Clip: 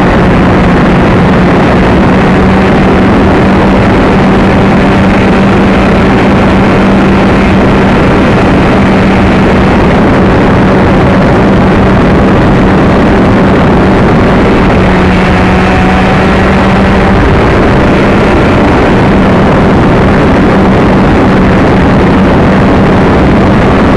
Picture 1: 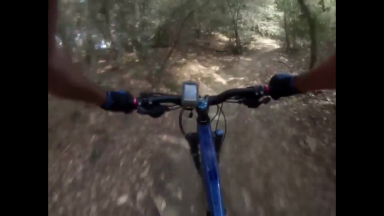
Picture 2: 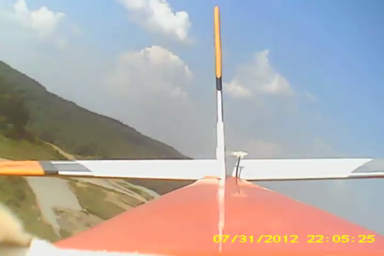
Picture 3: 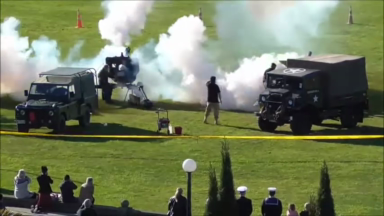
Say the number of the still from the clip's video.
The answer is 2